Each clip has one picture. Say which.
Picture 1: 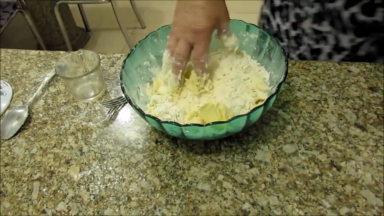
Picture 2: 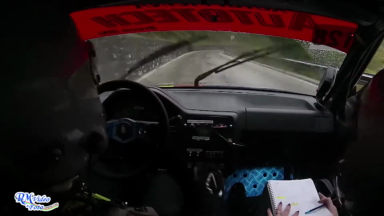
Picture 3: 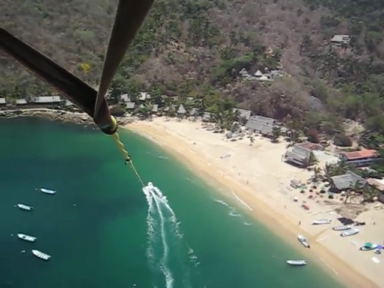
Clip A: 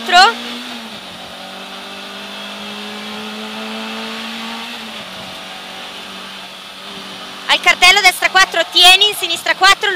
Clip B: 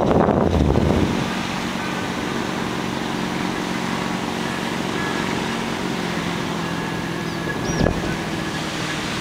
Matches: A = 2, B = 3